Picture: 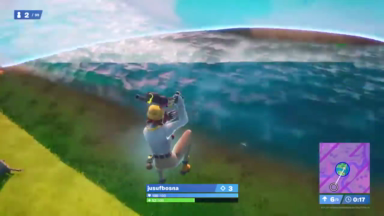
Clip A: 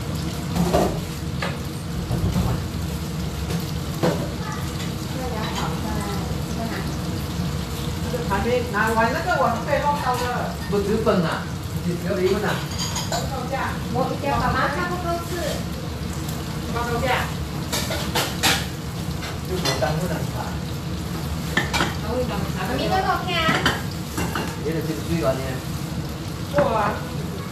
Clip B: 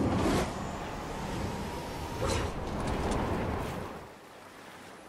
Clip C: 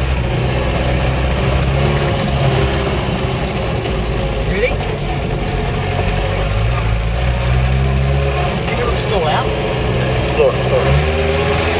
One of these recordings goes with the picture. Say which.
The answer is B